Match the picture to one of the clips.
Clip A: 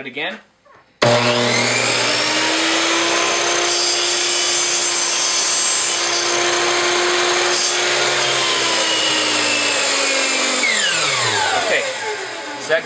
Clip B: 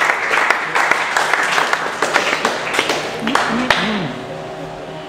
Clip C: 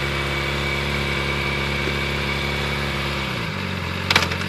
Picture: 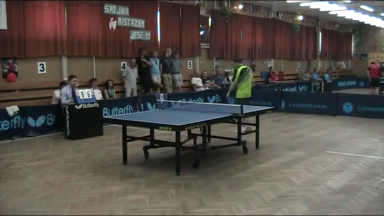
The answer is B